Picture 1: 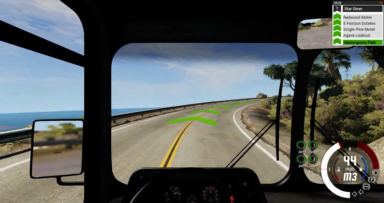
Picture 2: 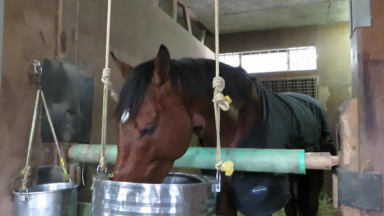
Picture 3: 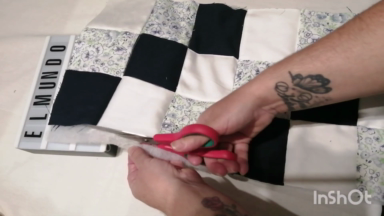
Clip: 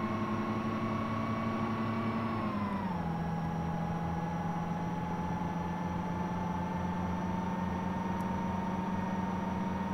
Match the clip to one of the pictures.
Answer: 1